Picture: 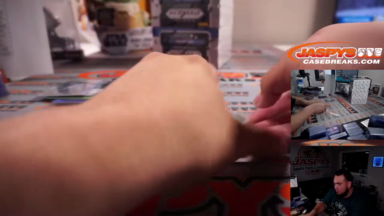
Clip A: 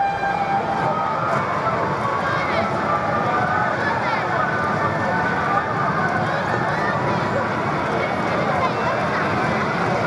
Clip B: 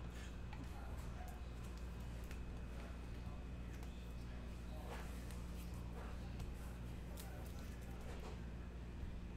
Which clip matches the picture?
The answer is B